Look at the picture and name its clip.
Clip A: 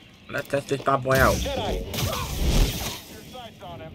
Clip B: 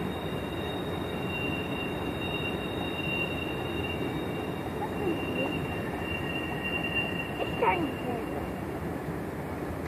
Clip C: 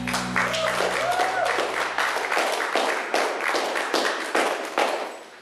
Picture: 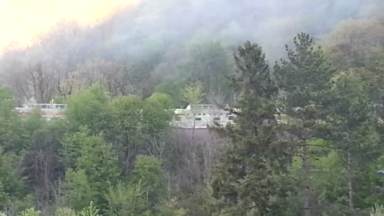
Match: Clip B